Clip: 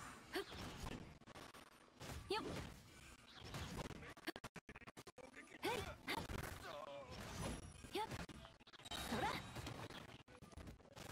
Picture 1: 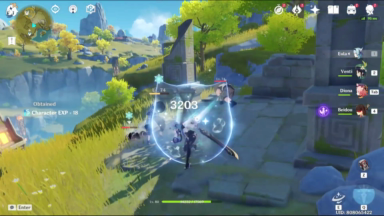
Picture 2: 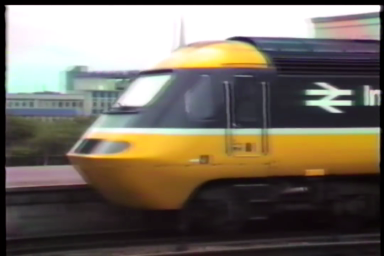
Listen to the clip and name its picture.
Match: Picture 1